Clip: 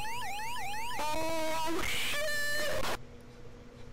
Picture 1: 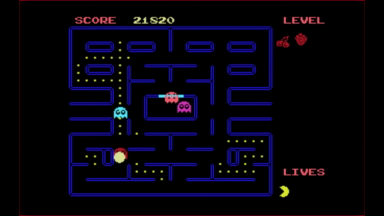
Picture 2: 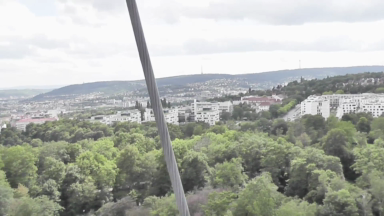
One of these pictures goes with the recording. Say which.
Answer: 1